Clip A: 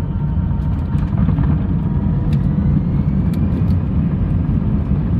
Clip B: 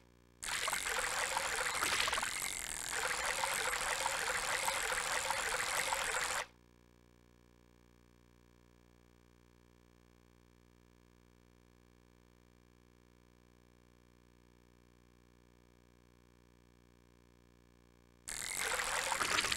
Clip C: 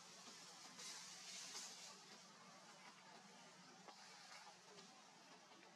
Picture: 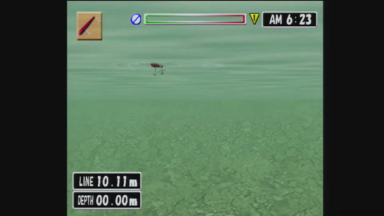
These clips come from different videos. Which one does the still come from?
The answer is B